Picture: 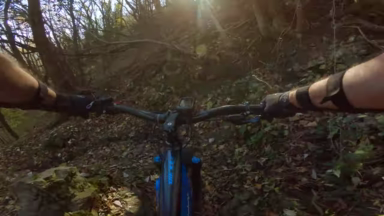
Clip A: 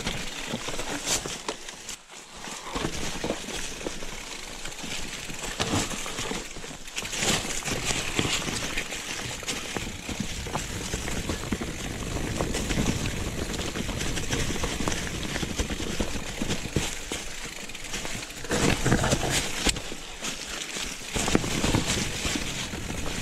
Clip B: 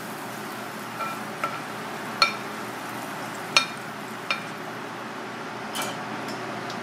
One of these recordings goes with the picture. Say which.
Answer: A